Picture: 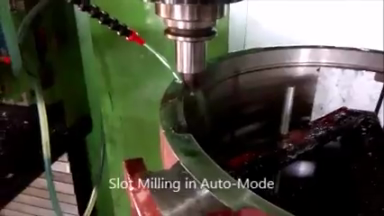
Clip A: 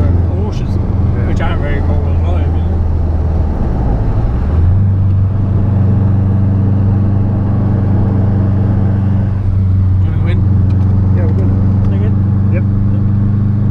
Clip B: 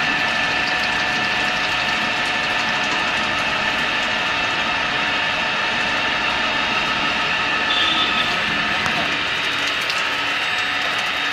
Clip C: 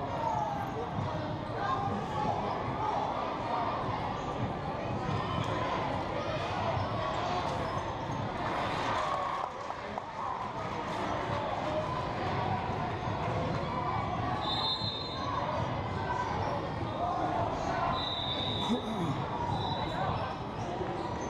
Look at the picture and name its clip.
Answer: B